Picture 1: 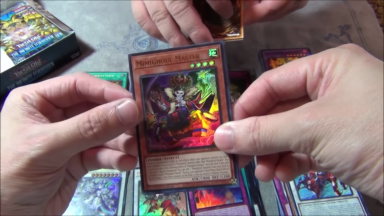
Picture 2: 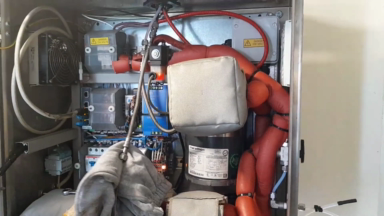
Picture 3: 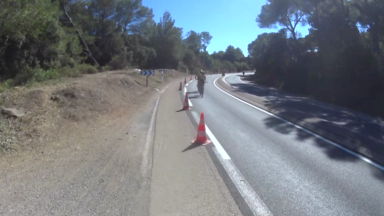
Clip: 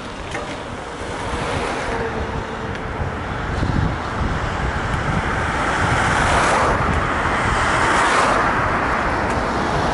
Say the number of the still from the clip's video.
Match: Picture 3